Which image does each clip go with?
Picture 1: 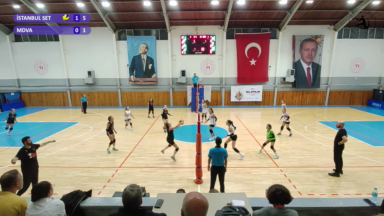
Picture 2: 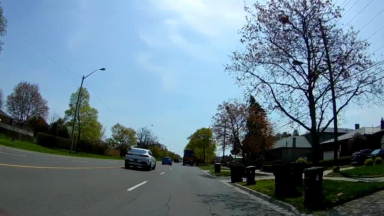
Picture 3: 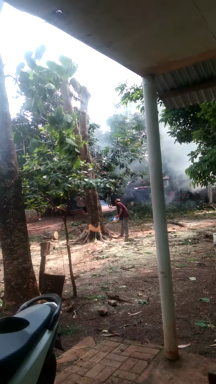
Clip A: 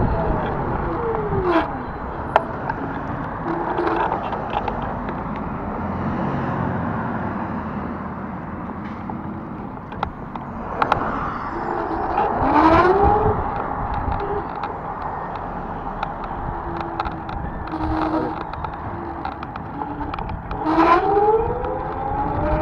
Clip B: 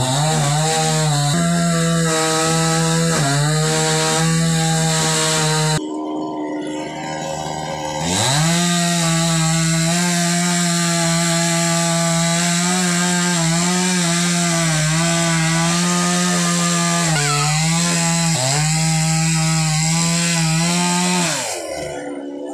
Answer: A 2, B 3